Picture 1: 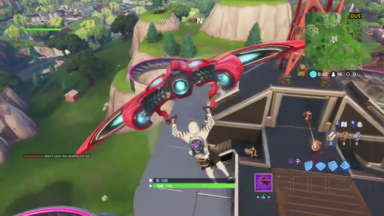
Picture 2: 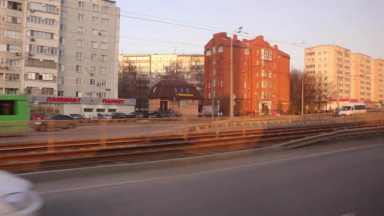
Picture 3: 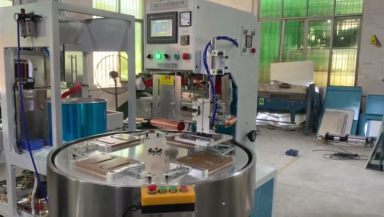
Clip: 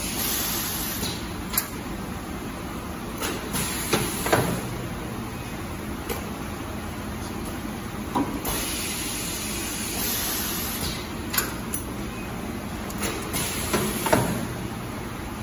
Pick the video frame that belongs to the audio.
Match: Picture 3